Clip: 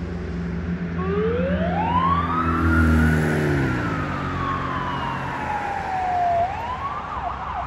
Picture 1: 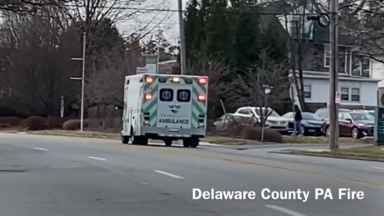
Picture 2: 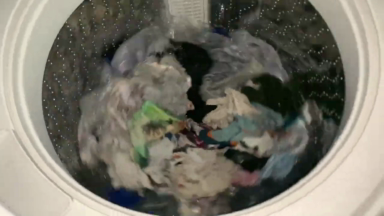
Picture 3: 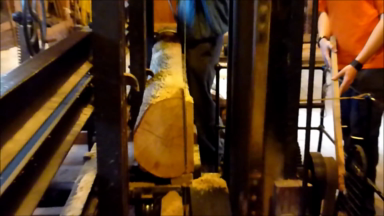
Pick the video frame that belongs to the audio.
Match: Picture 1